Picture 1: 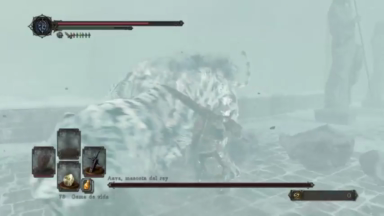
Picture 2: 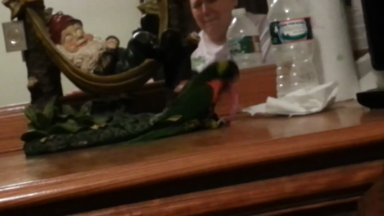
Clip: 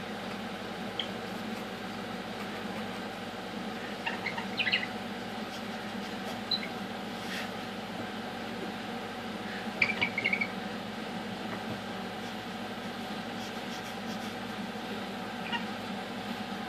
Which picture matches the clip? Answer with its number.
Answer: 2